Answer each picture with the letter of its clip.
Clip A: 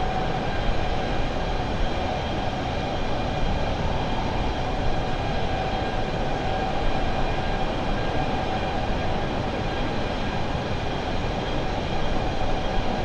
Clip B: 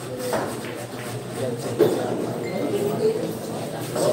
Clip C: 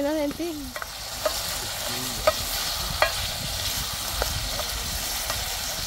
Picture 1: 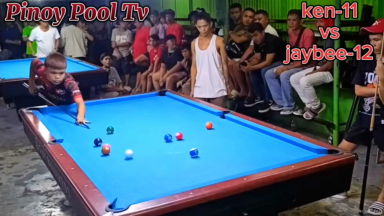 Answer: B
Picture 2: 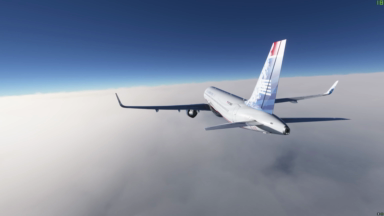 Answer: A